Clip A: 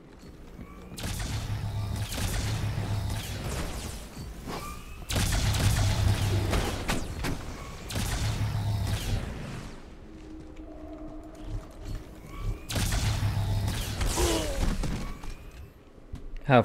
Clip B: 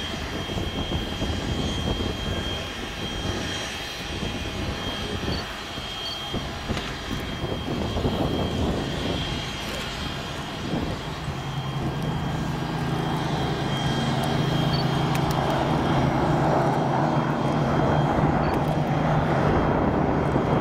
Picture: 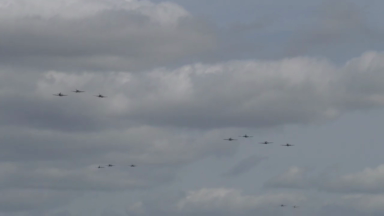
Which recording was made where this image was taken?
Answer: B